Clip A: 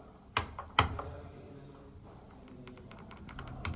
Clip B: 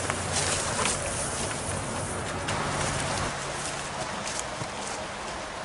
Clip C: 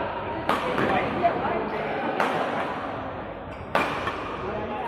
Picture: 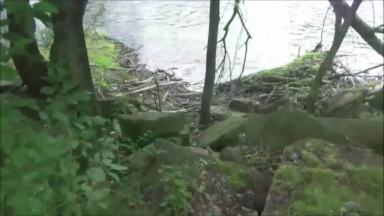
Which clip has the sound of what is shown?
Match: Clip B